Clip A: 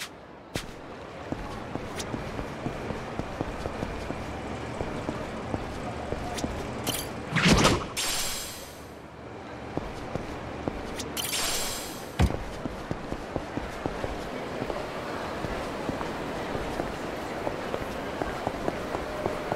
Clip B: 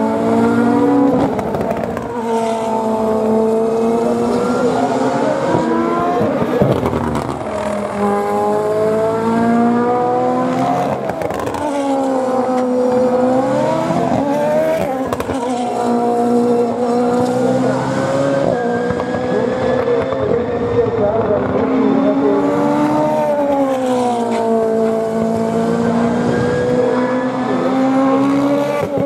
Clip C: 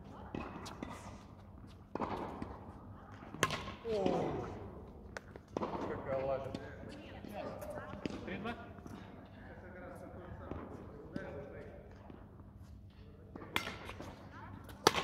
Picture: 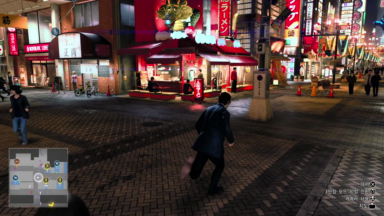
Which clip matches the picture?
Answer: A